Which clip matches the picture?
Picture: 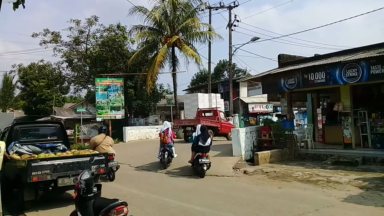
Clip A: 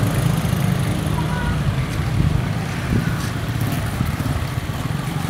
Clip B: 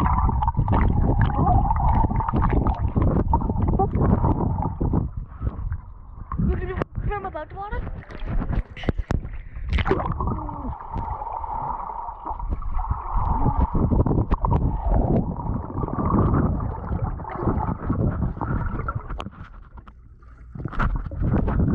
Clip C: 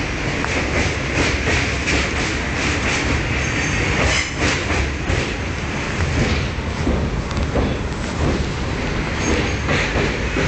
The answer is A